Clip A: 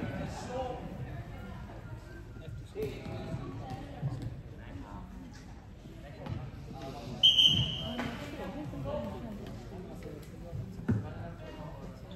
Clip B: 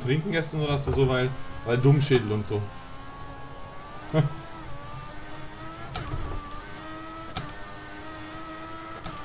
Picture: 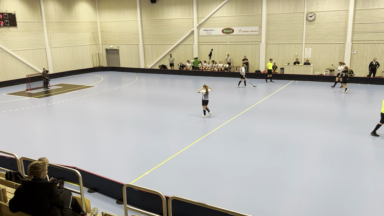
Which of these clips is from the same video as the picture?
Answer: A